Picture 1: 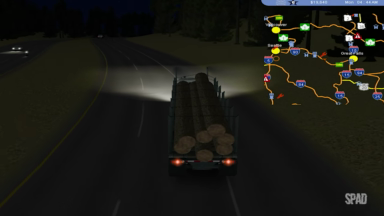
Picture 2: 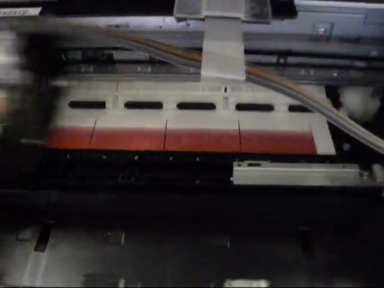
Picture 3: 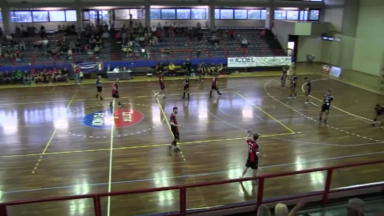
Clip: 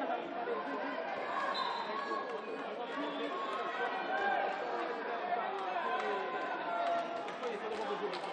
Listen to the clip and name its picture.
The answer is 3